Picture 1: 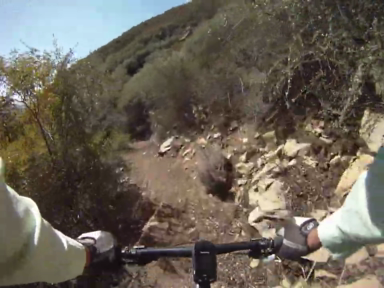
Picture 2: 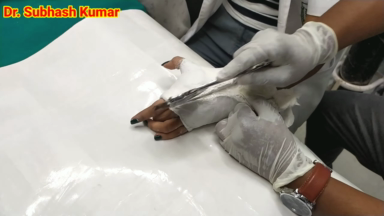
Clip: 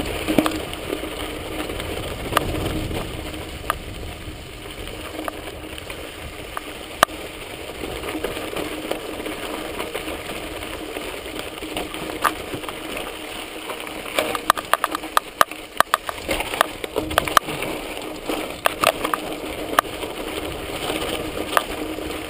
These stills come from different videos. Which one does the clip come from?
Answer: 1